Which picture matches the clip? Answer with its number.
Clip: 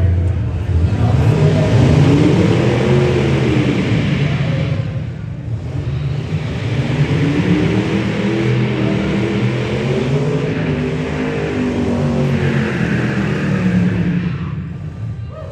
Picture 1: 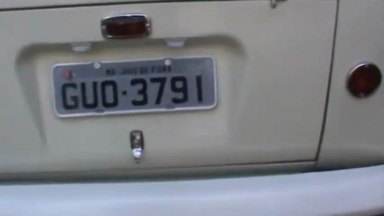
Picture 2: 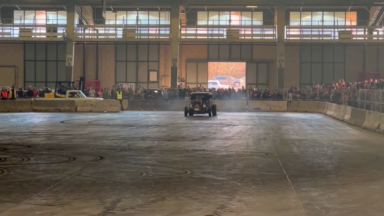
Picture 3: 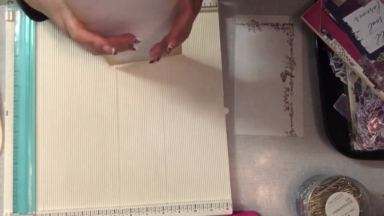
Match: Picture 2